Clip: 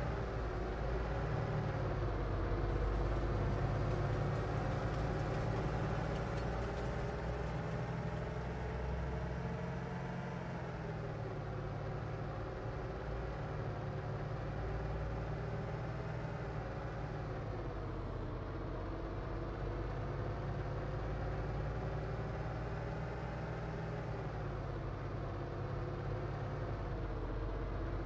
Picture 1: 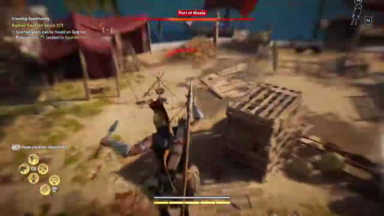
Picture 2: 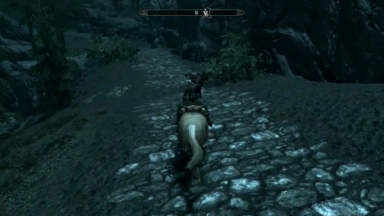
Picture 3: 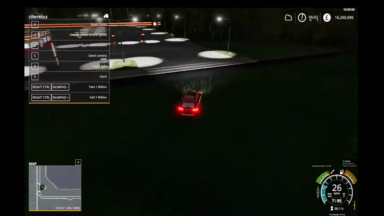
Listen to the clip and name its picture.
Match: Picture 3